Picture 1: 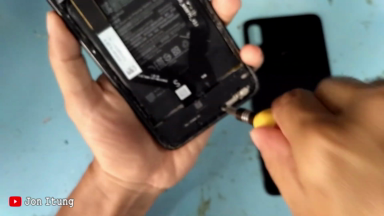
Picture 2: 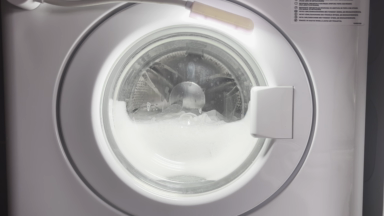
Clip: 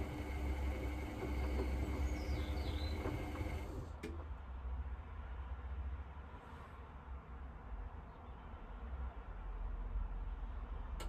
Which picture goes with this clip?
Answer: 2